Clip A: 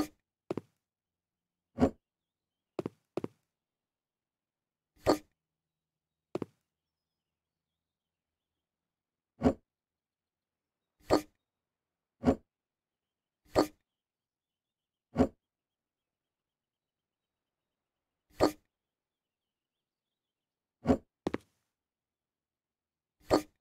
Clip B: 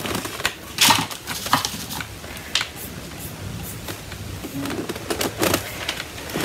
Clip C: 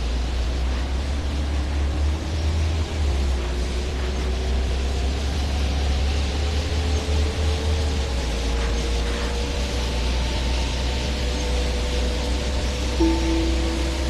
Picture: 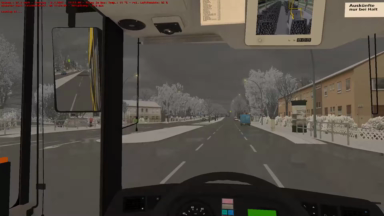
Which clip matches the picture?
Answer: C